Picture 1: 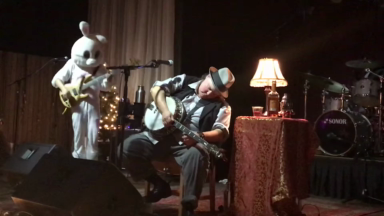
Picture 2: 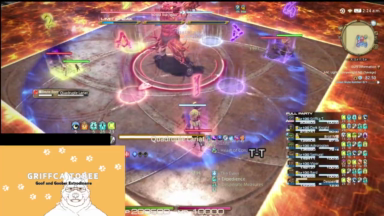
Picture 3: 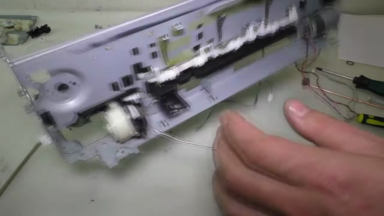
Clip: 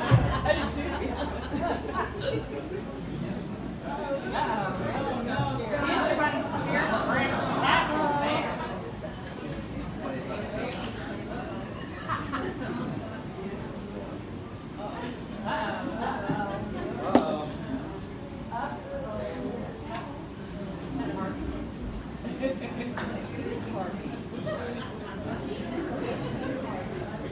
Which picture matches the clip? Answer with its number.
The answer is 1